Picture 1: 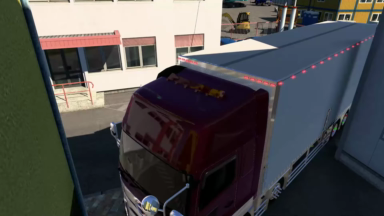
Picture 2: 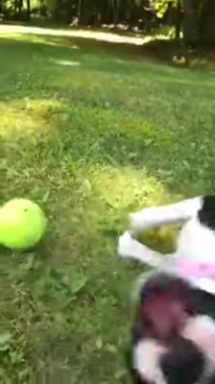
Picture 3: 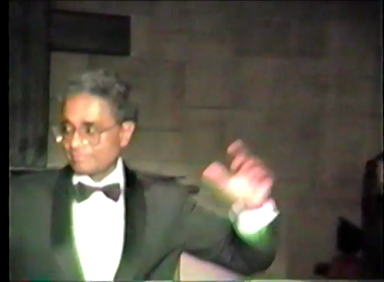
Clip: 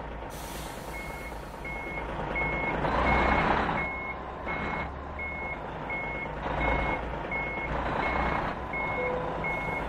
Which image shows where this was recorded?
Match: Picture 1